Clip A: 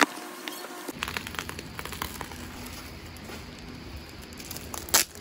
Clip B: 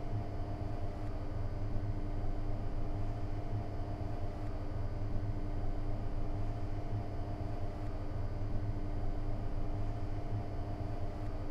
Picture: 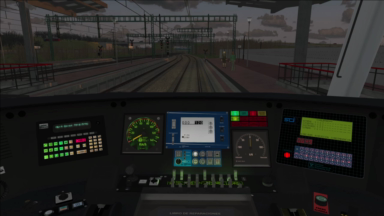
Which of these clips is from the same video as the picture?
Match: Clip B